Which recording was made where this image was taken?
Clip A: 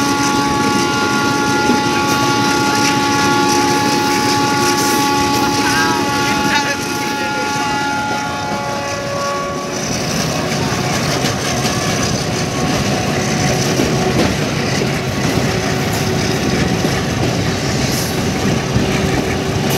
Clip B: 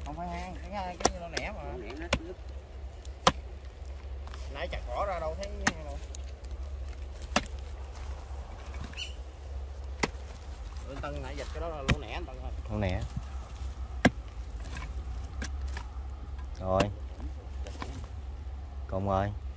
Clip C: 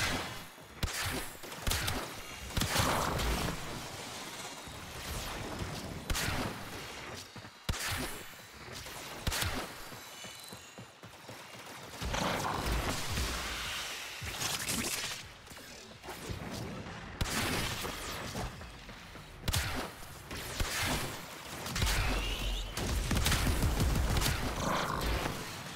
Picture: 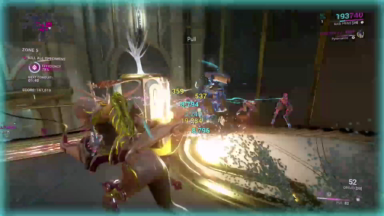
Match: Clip C